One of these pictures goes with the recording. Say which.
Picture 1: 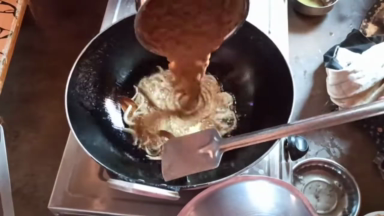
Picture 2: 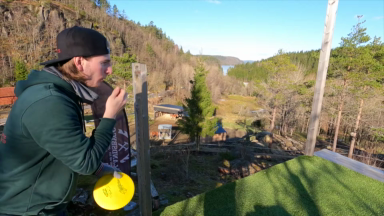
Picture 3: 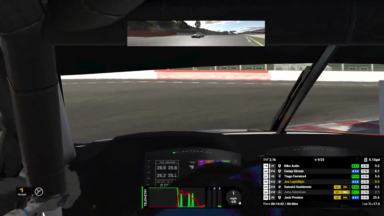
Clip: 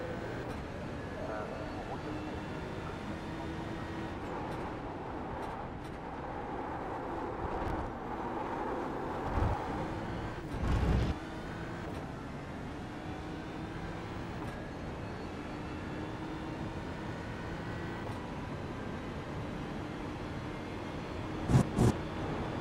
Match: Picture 3